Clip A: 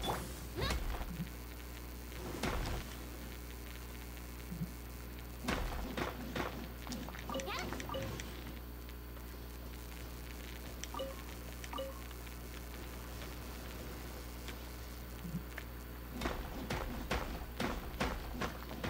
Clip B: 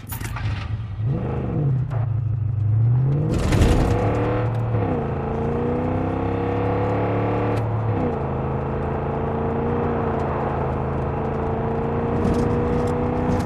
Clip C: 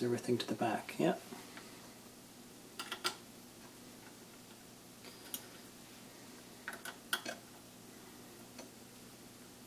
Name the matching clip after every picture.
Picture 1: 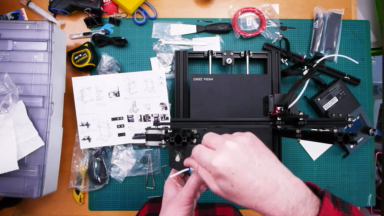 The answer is C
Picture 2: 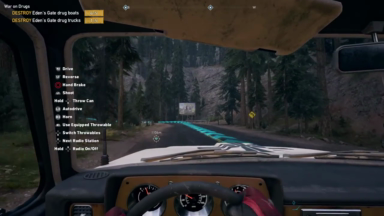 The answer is B